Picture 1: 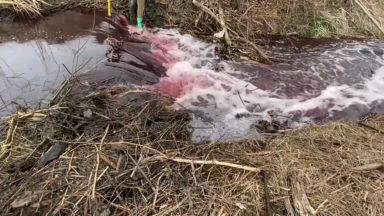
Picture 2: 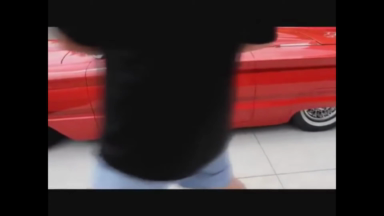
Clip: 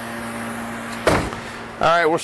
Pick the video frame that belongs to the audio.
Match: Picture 2